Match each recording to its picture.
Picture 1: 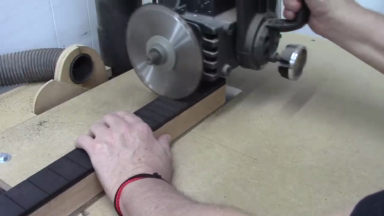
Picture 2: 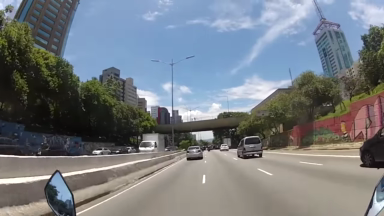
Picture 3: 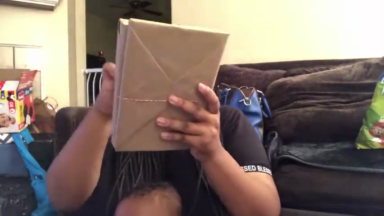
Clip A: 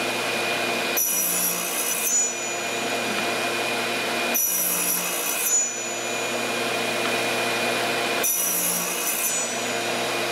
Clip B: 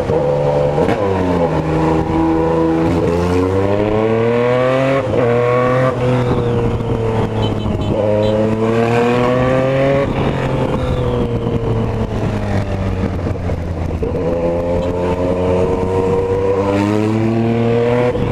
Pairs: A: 1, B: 2